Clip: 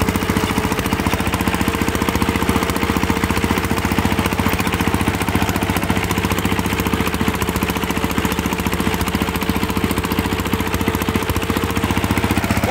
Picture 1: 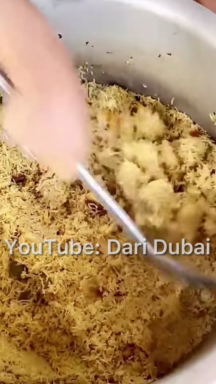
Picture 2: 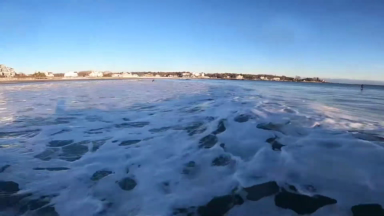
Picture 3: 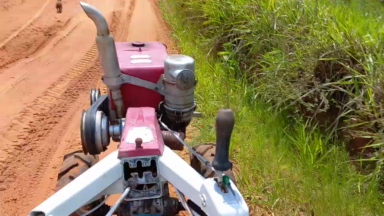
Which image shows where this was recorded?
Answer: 3